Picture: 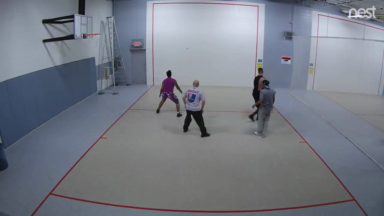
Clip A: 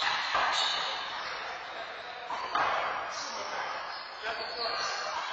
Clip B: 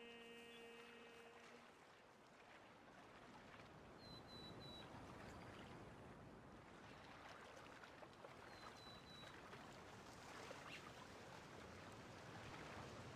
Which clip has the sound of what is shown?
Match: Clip A